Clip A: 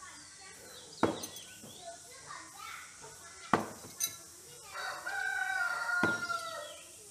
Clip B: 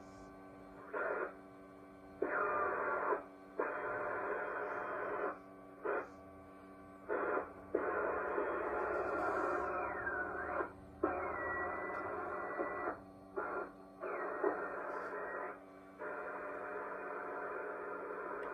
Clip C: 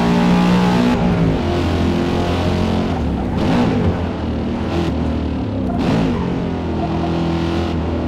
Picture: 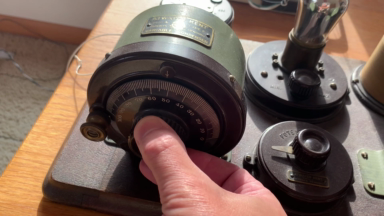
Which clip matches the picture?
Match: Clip B